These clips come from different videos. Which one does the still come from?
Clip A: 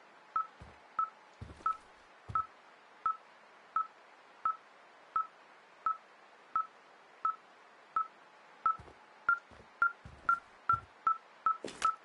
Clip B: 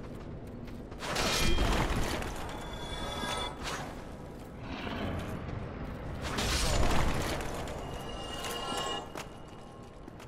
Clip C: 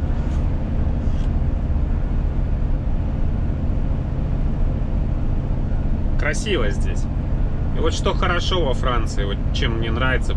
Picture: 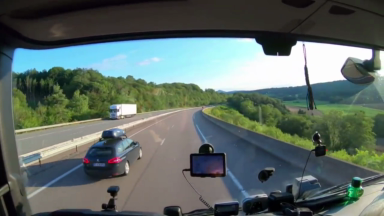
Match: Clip C